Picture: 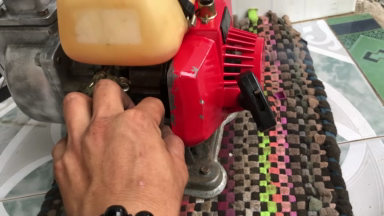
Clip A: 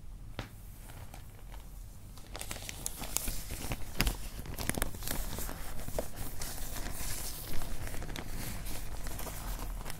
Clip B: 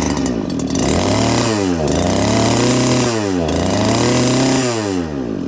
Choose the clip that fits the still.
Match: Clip B